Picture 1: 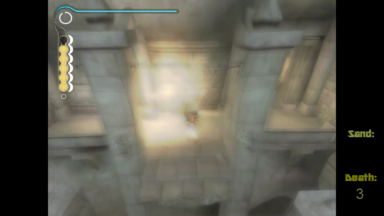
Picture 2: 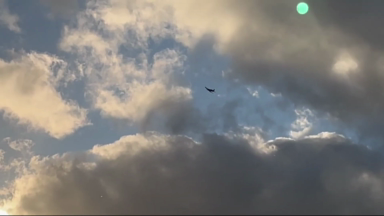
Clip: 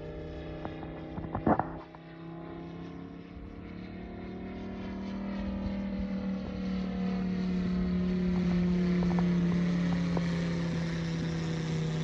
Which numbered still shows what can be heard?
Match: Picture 2